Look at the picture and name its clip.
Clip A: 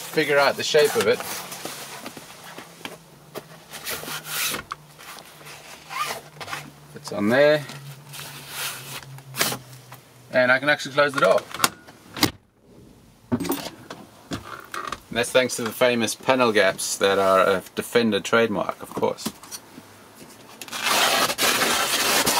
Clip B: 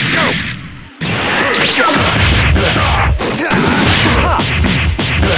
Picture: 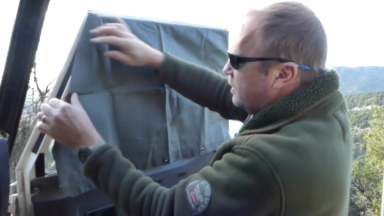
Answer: A